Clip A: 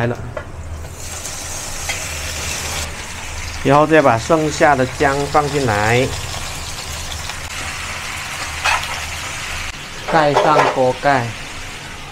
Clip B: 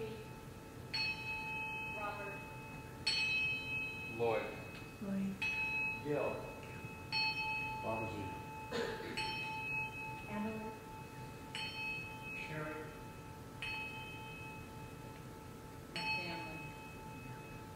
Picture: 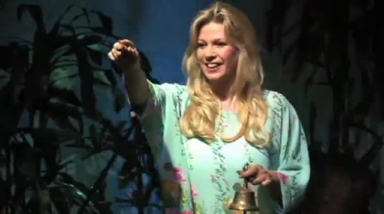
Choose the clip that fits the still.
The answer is B